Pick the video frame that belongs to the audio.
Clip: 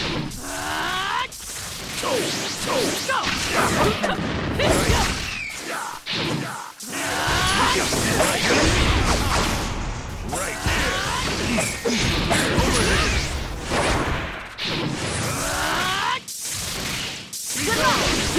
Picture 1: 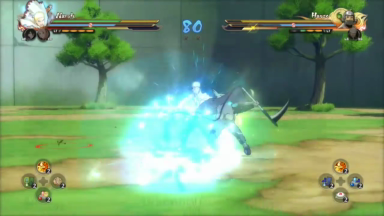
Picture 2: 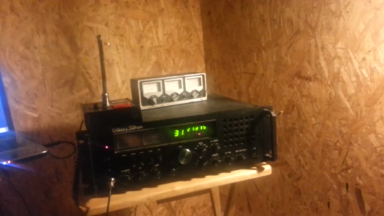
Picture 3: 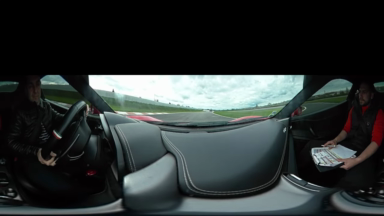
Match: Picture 1